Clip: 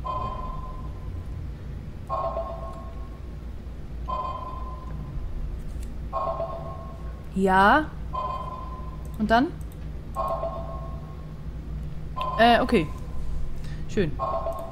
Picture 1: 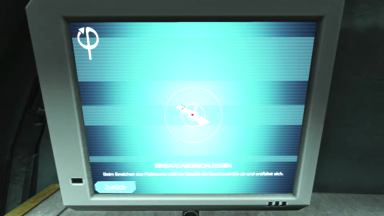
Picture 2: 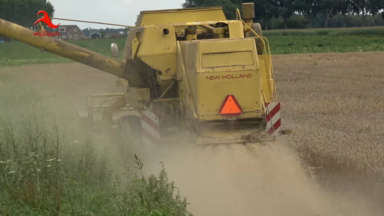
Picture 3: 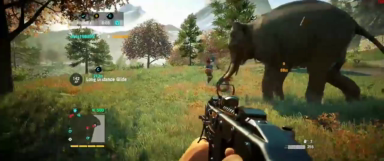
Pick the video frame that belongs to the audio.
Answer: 1